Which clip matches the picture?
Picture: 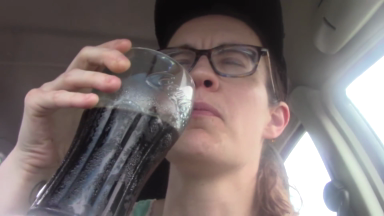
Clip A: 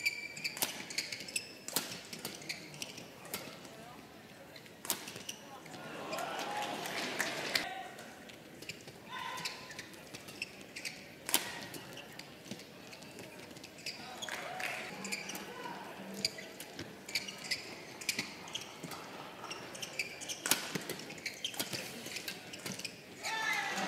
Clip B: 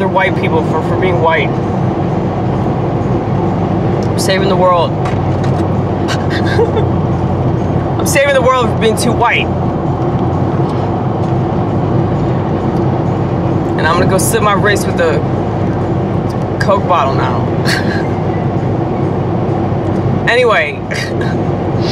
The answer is B